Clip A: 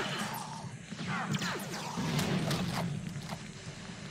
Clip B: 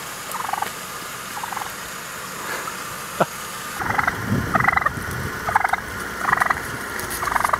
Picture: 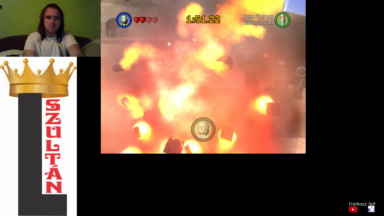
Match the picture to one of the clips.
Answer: A